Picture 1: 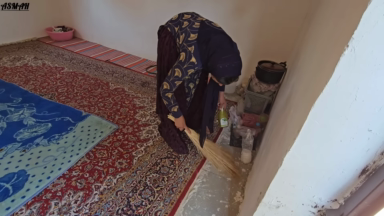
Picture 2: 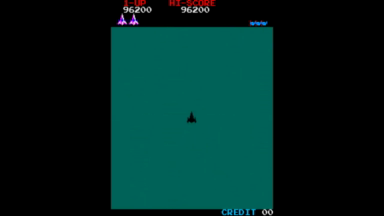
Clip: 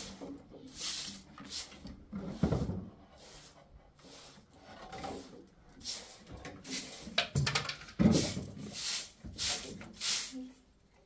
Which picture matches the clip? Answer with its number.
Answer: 1